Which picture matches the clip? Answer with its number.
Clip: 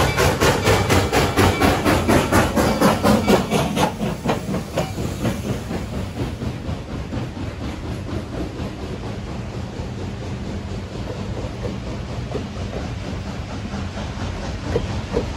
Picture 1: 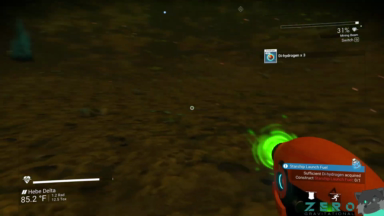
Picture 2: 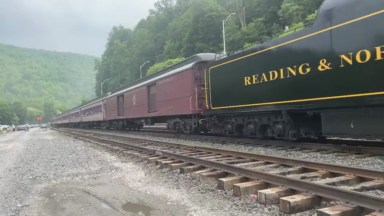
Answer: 2